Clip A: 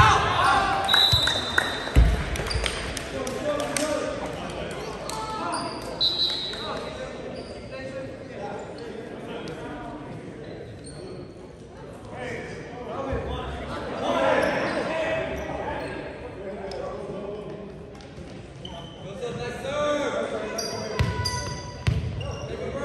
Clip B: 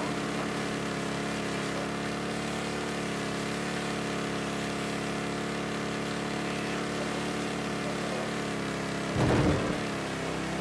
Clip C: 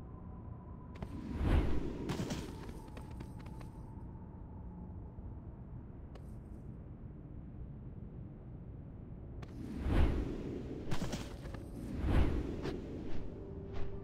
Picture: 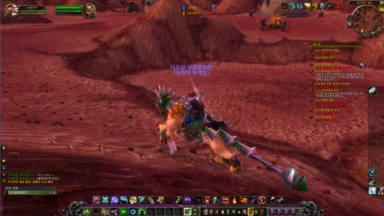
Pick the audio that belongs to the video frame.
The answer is C